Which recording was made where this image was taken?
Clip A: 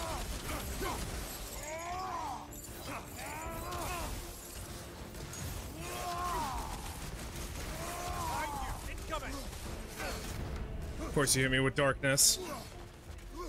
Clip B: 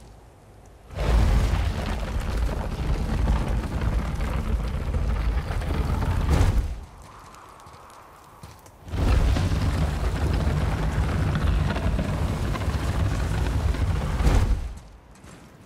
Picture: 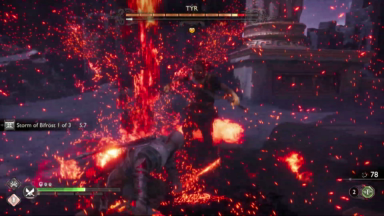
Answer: A